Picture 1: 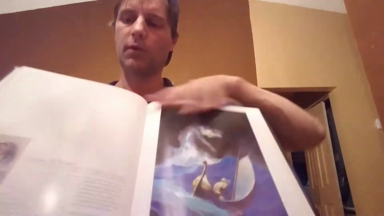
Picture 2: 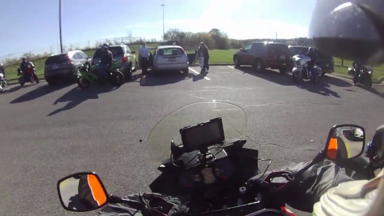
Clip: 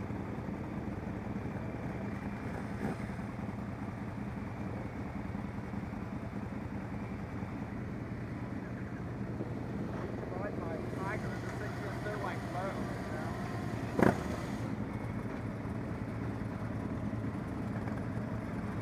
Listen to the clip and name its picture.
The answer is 2